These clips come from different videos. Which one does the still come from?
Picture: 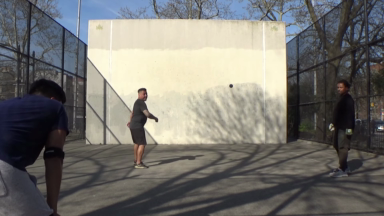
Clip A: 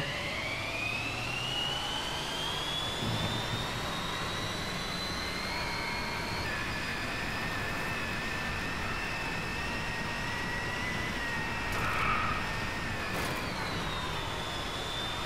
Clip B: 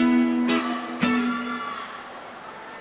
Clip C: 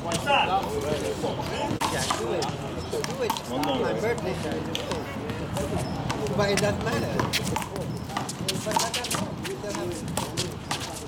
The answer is C